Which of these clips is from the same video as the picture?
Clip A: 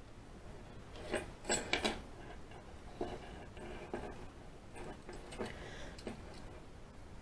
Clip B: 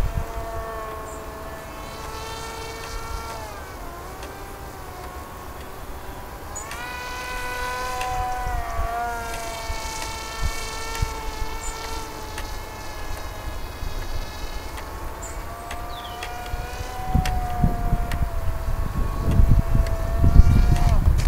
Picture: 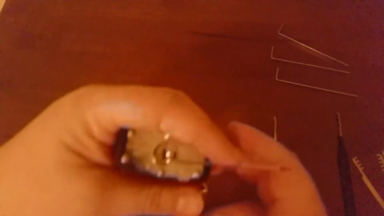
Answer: A